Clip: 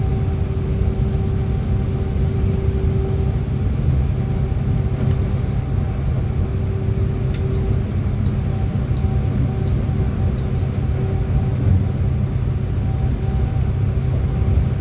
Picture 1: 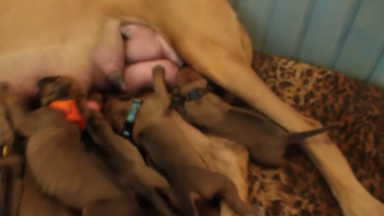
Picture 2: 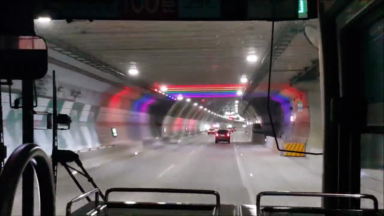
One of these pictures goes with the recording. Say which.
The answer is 2